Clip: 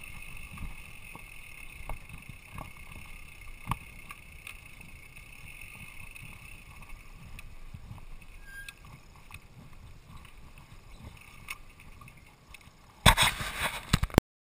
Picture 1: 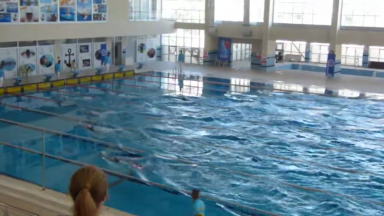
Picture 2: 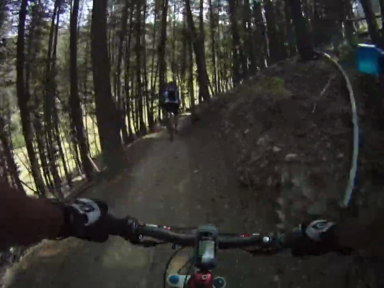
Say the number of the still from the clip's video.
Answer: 2